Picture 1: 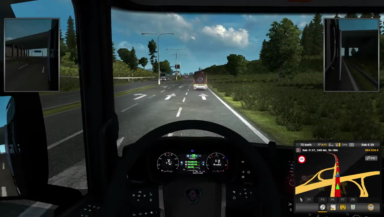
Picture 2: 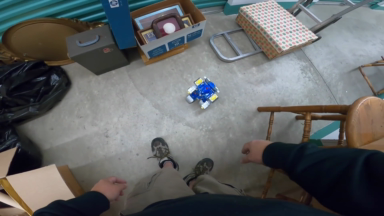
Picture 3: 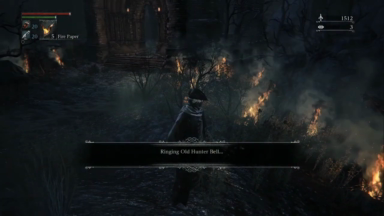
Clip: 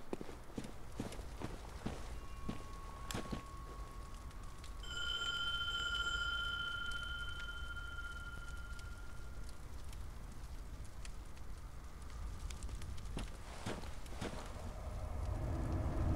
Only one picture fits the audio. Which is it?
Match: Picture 3